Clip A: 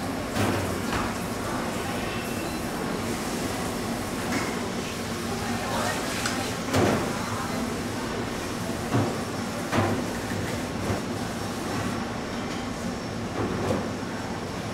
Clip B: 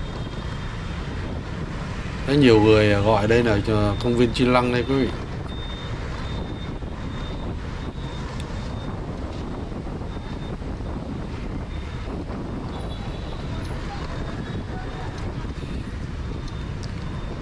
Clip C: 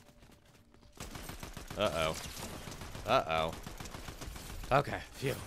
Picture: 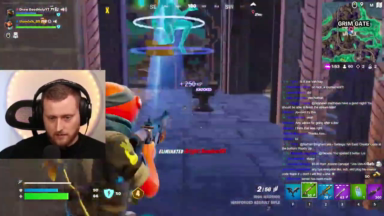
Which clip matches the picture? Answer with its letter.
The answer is C